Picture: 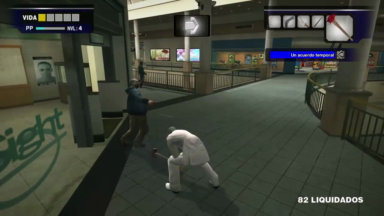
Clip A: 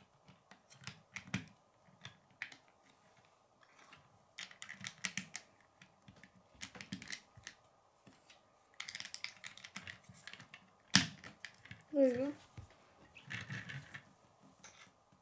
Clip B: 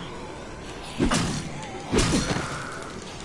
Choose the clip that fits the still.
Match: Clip B